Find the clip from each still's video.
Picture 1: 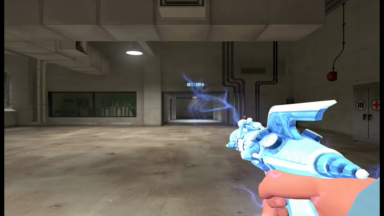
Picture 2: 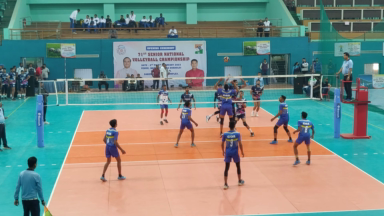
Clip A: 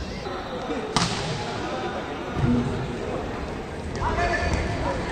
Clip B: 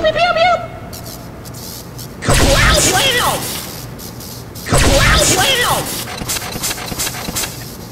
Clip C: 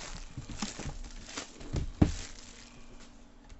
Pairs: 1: B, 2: A